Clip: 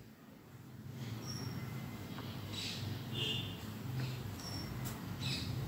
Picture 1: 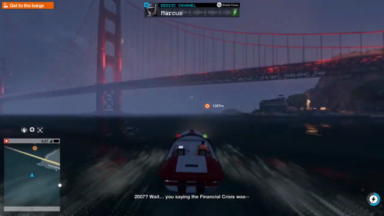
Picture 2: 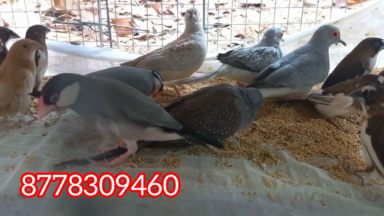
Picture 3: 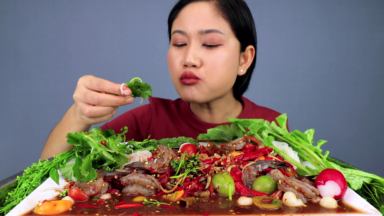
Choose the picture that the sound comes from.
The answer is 2